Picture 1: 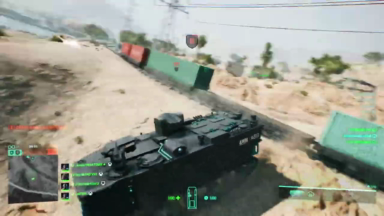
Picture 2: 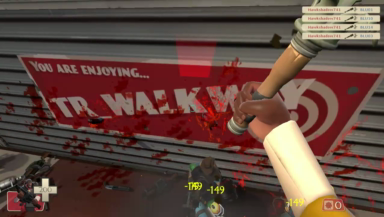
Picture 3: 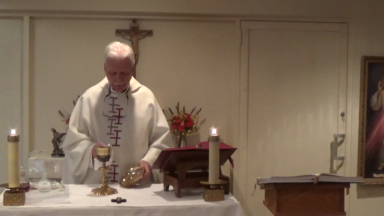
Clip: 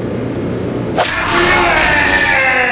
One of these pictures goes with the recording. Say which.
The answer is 2